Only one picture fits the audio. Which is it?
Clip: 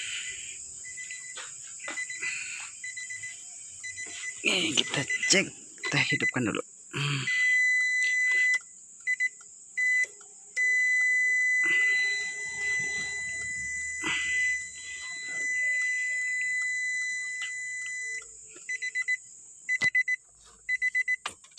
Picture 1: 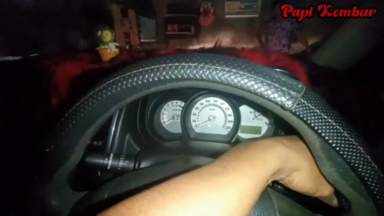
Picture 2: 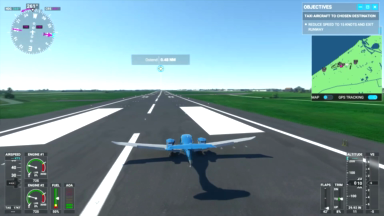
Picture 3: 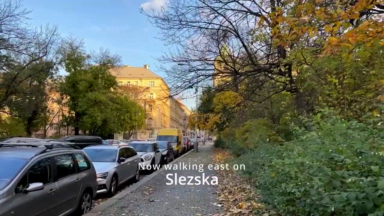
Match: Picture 1